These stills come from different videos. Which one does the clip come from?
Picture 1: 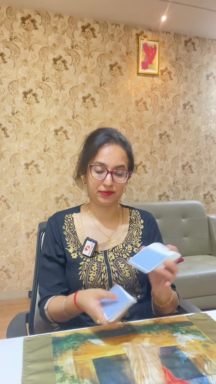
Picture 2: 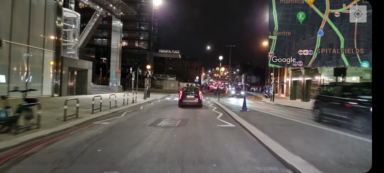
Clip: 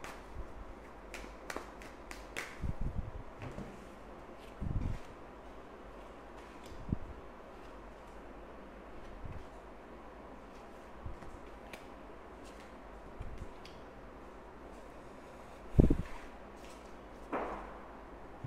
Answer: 1